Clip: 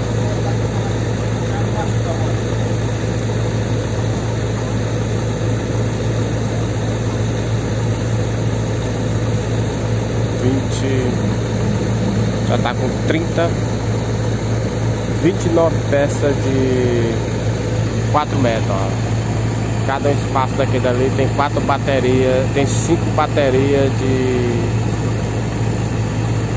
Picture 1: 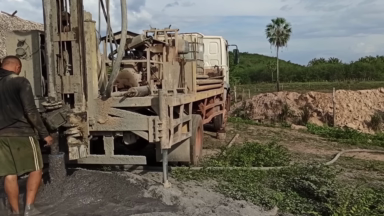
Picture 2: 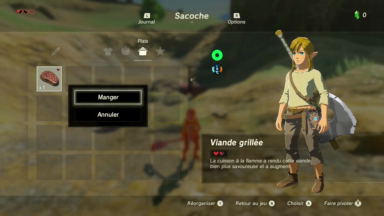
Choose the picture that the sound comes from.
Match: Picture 1